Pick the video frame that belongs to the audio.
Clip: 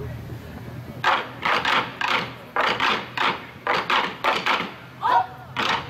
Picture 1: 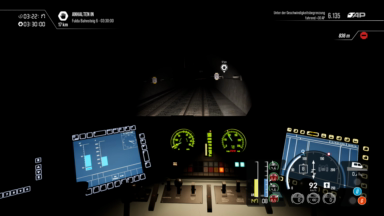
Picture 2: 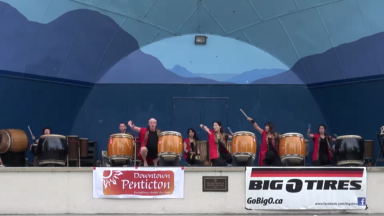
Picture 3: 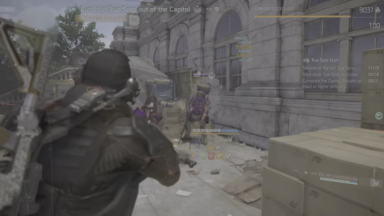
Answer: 2